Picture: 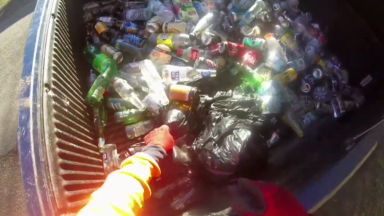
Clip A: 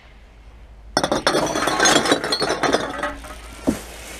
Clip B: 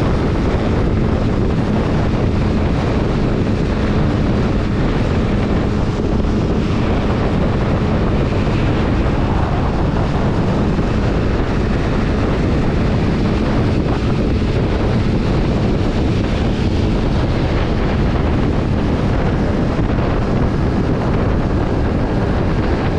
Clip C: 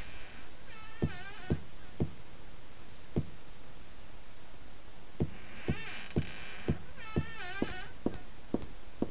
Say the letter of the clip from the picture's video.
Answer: A